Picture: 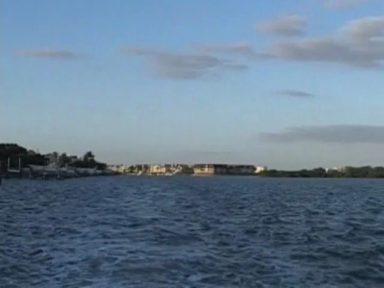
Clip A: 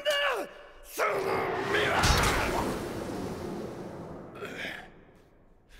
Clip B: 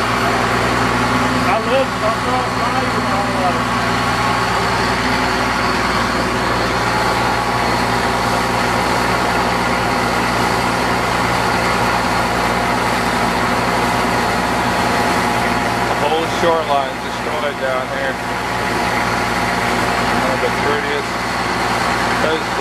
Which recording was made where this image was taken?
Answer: B